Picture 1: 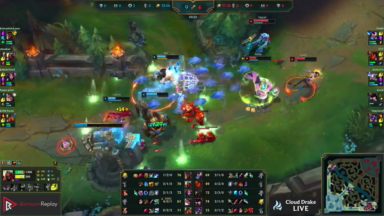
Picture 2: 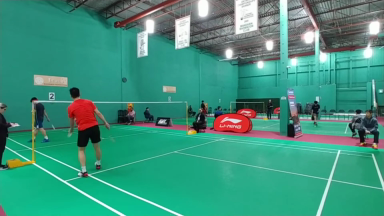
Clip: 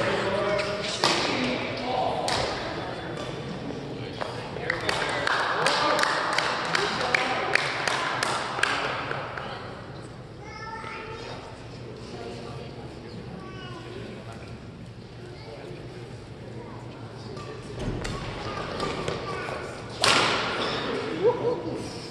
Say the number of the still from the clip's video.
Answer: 2